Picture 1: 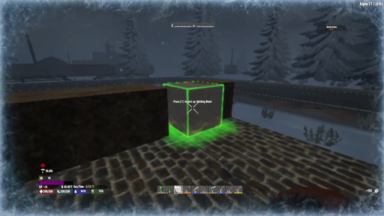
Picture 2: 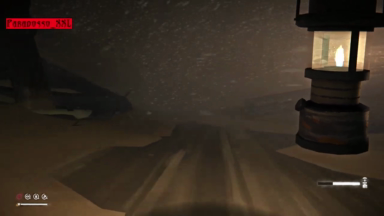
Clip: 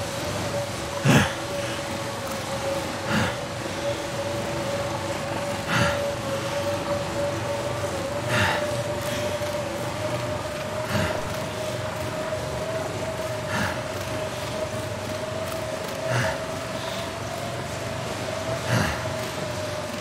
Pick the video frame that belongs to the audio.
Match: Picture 2